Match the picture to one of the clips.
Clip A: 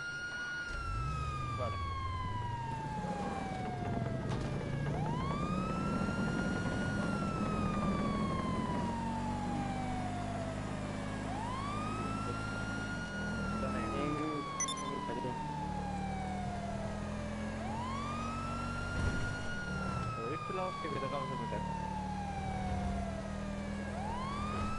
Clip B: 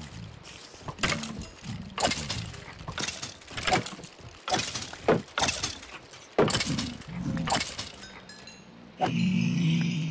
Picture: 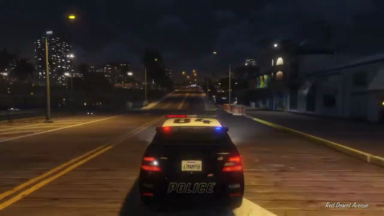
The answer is A